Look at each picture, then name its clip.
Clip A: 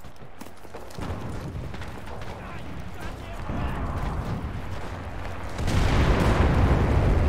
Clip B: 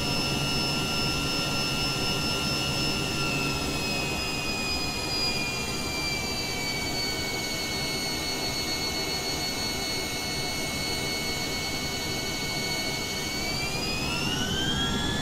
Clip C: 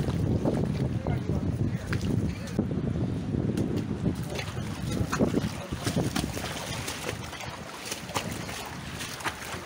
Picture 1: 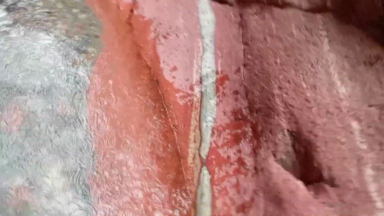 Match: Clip C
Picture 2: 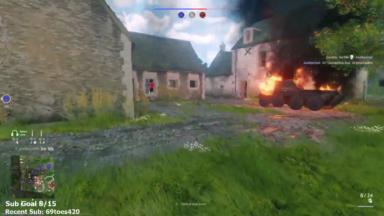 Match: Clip A